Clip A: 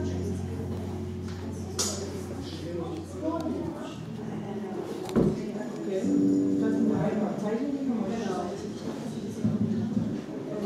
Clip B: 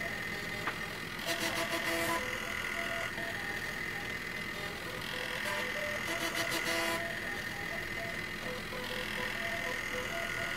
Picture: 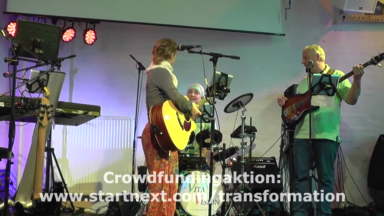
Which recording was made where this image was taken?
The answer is A